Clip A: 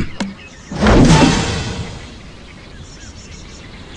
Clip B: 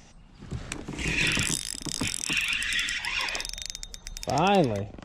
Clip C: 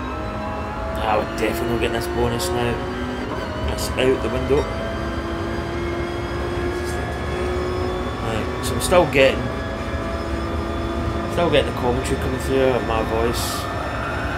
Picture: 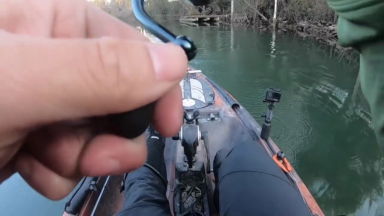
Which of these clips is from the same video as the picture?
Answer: B